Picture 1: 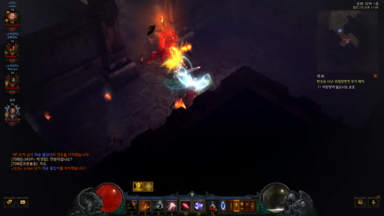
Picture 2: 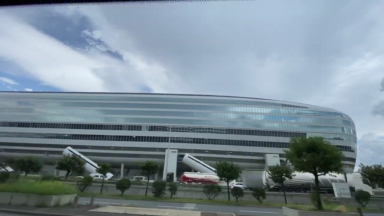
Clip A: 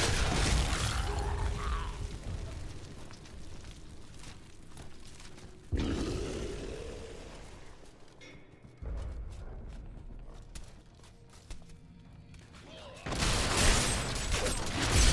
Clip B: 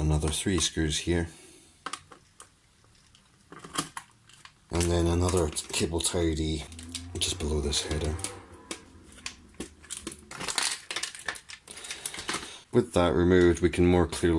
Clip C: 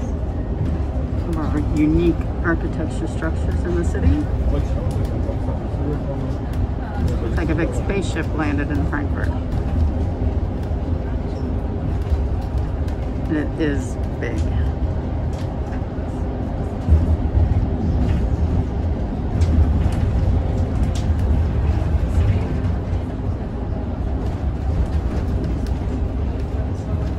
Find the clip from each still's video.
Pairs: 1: A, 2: C